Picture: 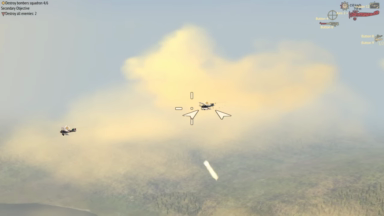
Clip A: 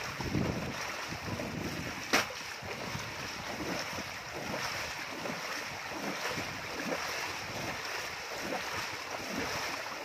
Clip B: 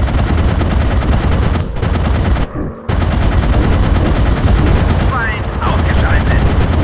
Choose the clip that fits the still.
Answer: B